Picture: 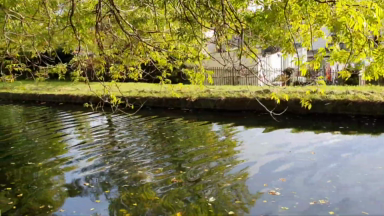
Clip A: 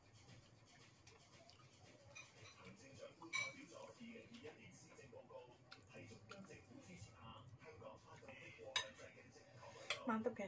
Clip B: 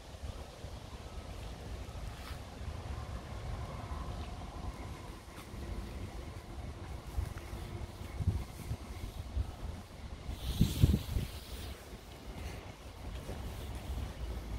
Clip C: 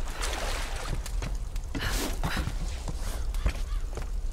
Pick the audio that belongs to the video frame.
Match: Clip B